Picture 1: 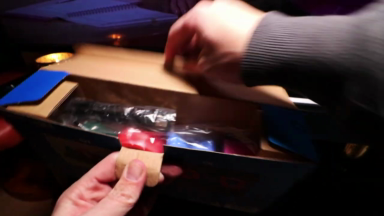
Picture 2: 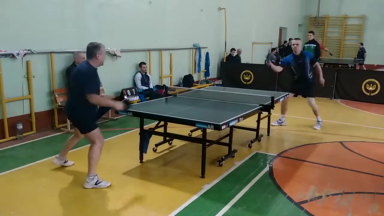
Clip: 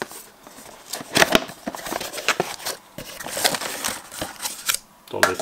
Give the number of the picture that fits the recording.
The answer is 1